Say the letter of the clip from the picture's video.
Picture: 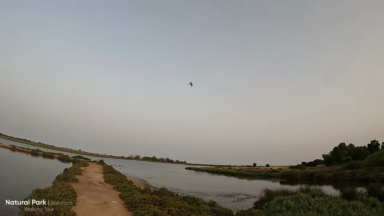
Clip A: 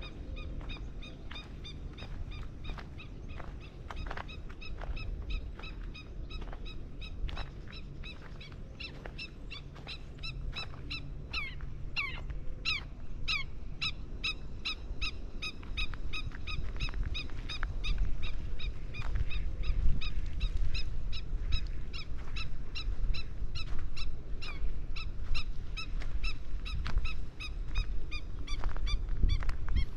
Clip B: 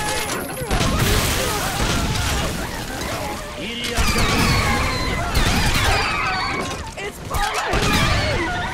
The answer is A